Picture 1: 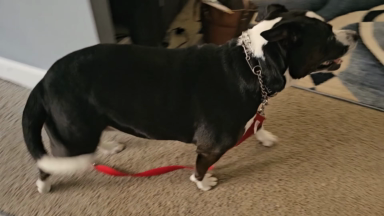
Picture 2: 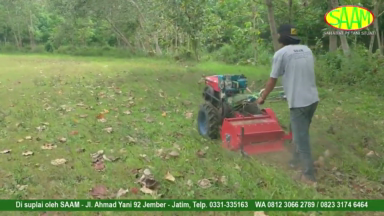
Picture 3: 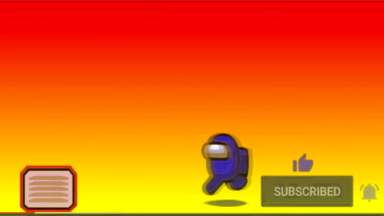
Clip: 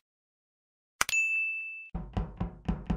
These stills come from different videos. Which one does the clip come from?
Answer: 3